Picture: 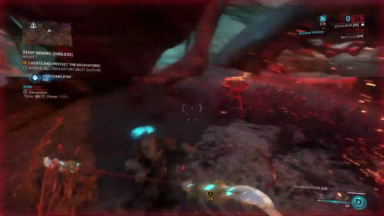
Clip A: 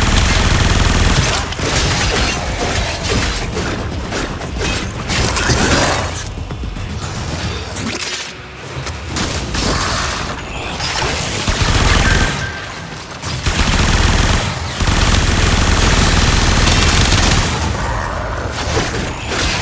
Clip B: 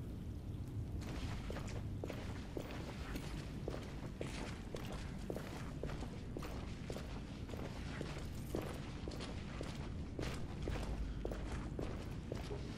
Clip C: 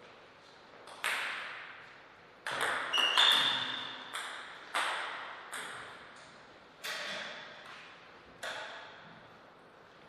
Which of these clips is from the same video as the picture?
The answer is A